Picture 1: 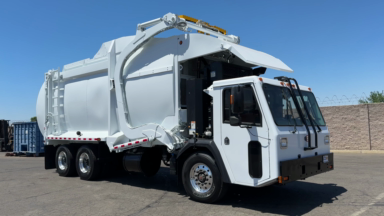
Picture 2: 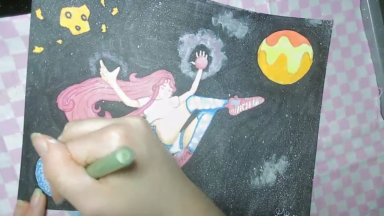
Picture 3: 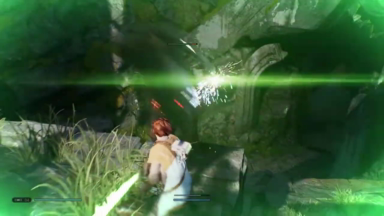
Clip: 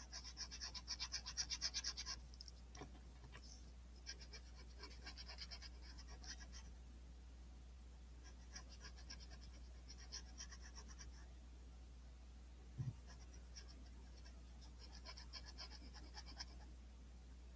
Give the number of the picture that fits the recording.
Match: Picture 2